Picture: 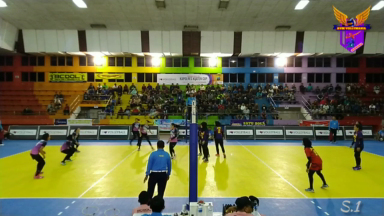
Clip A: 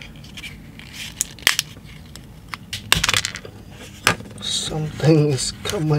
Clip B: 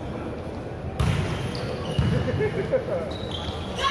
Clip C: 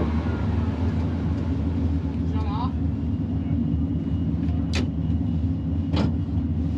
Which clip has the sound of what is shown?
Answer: B